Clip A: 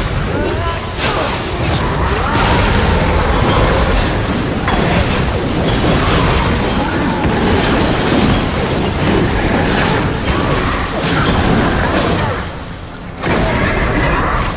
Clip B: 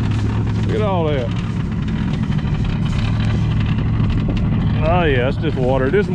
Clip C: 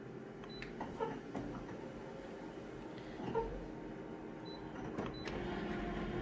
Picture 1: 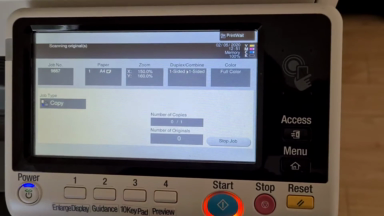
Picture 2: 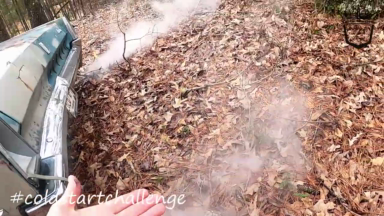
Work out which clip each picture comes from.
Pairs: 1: C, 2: B